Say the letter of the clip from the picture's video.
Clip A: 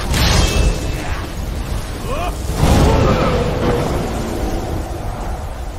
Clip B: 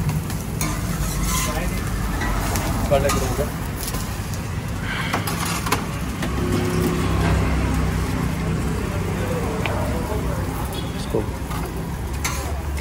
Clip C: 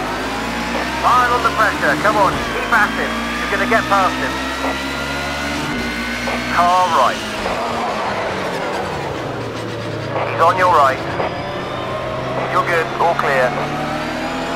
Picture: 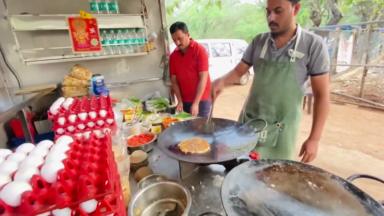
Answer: B